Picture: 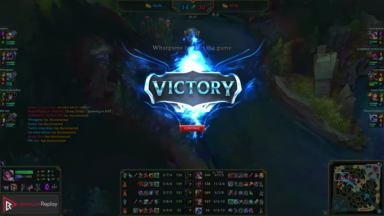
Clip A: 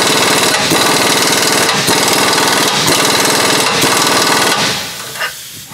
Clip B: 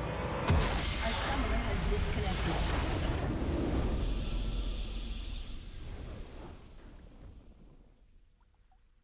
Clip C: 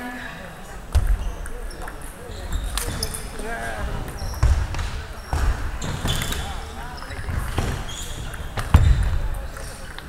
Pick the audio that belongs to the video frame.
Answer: B